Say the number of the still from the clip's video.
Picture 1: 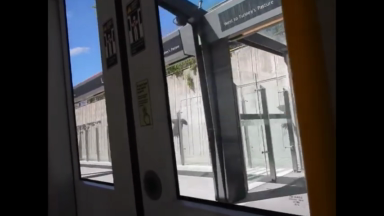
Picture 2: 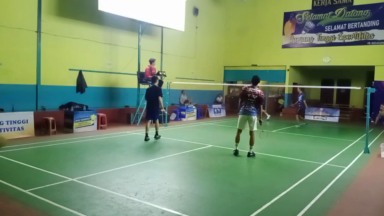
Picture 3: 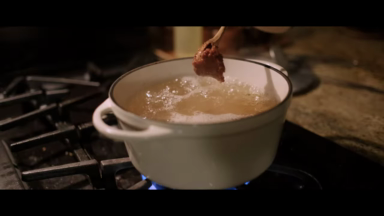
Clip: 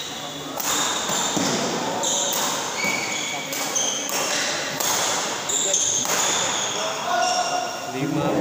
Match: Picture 2